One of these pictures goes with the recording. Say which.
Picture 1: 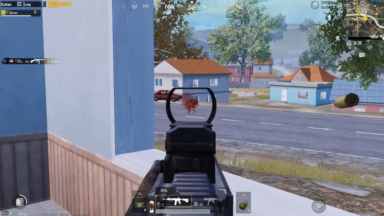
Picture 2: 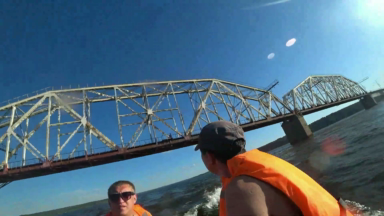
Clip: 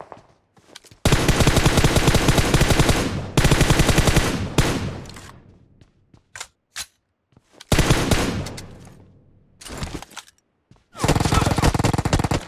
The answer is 1